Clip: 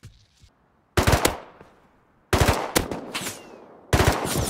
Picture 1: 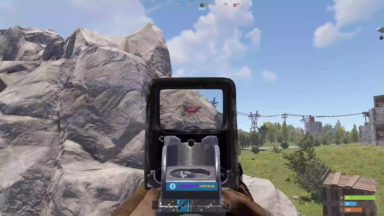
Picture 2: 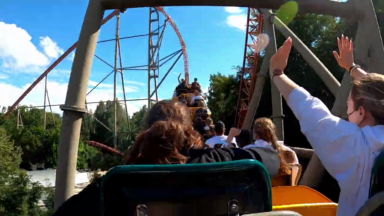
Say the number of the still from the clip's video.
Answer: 1